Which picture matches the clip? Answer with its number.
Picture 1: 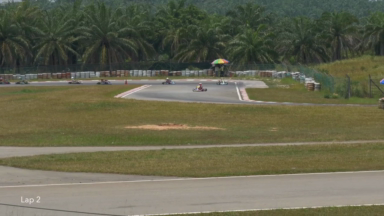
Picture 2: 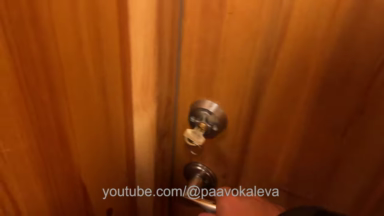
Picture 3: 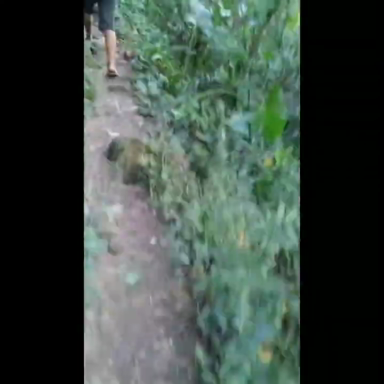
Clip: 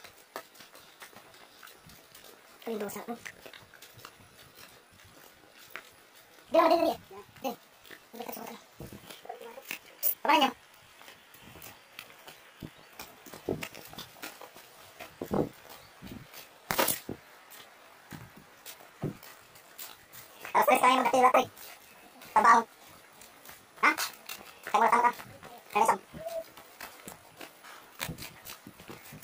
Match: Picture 3